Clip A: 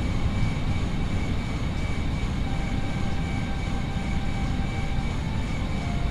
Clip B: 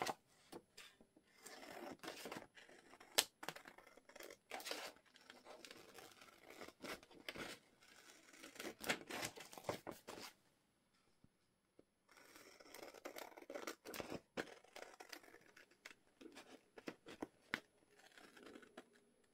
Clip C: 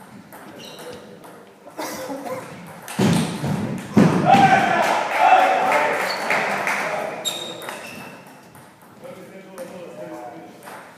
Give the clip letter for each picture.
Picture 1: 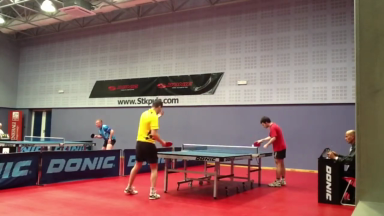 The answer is C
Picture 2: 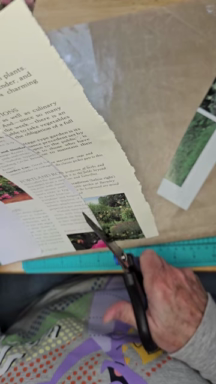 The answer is B